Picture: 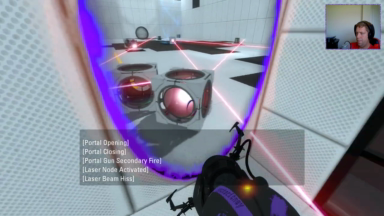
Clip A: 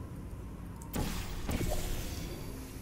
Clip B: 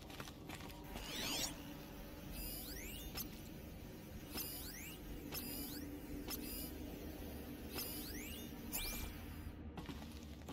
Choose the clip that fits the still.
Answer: A